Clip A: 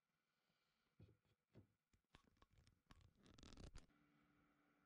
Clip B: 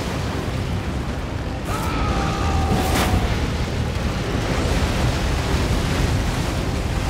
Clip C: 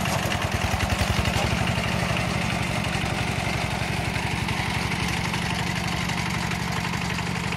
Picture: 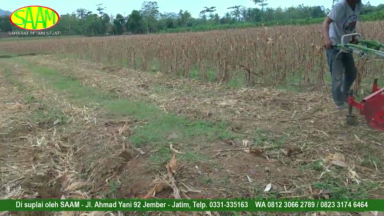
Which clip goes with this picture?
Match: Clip C